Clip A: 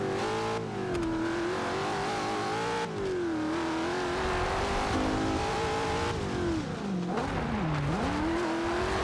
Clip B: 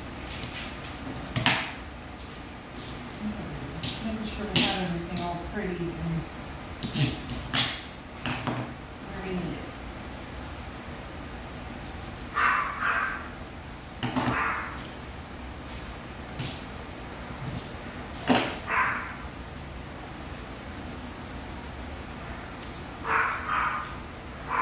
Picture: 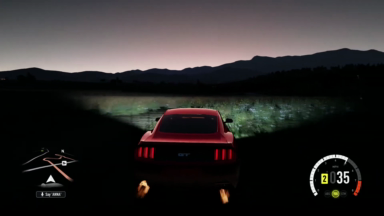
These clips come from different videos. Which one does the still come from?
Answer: A